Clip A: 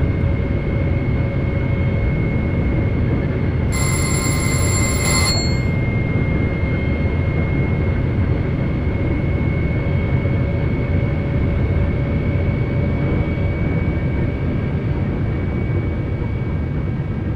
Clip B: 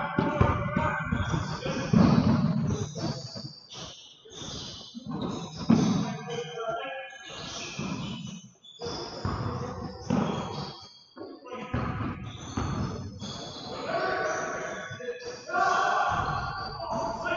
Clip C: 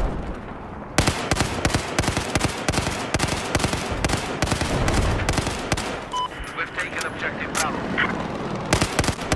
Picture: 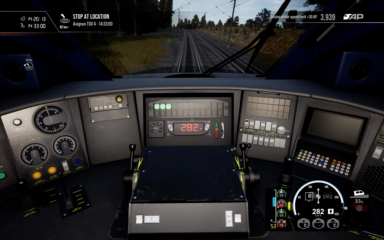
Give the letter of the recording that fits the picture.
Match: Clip A